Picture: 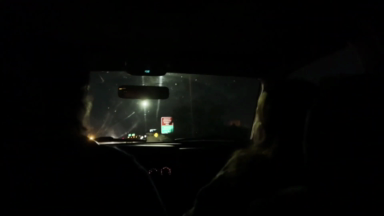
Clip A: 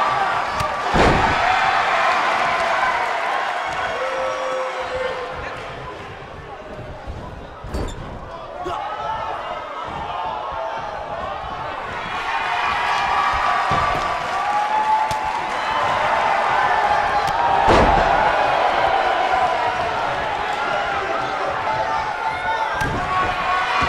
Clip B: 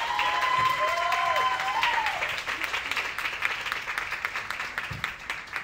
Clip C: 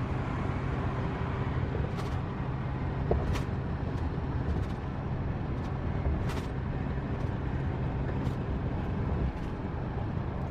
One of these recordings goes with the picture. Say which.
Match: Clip C